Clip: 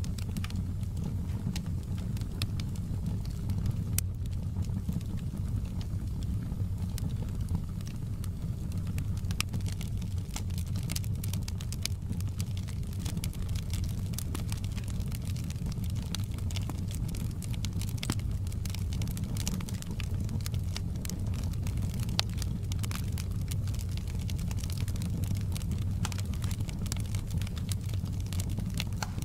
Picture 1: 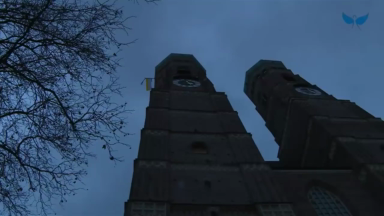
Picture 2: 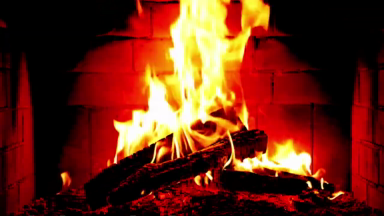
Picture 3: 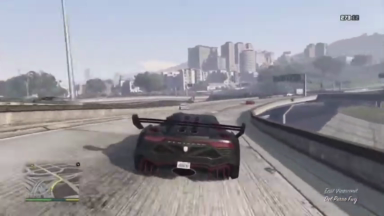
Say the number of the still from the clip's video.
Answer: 2